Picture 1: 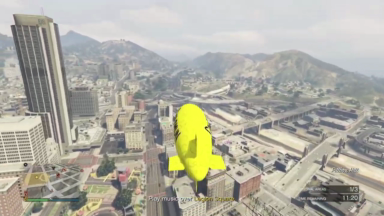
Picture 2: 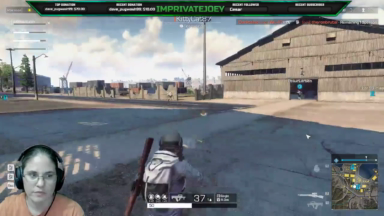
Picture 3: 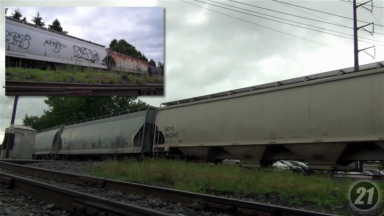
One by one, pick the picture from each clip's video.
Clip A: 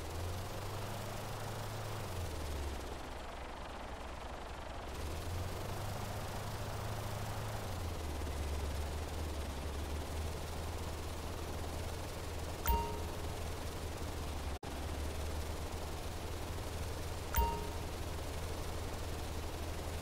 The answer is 1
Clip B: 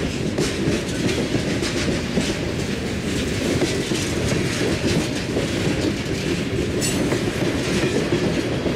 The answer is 3